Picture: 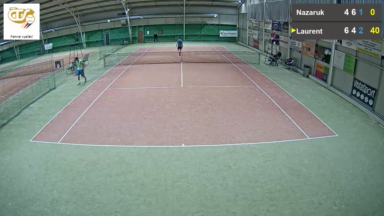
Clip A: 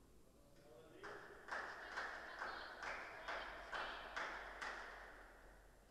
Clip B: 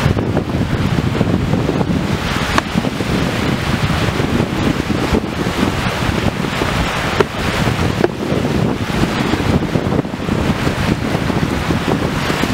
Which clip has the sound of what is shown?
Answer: A